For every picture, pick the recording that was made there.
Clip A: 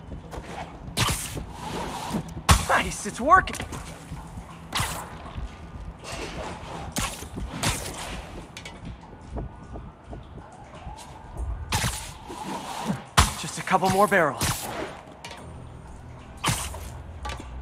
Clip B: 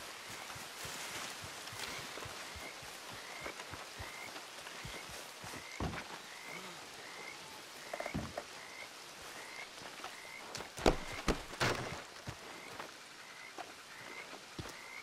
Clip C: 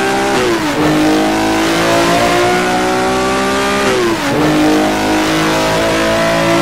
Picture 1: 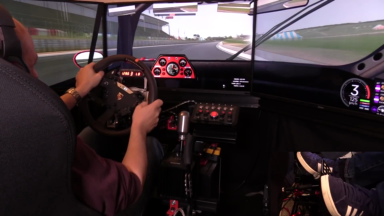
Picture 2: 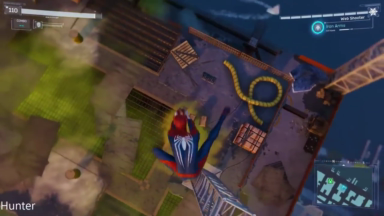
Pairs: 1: C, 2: A